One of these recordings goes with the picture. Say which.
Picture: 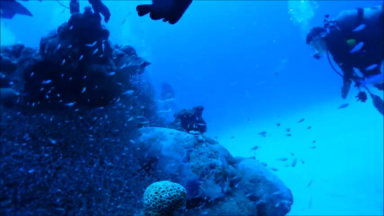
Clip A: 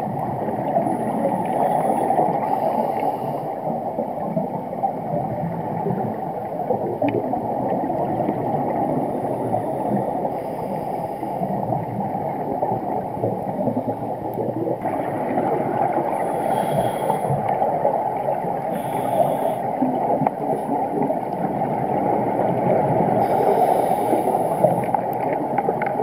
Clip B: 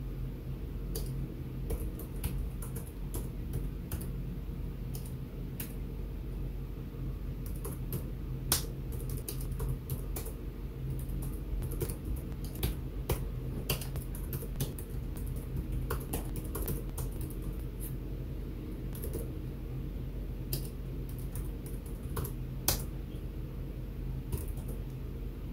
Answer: A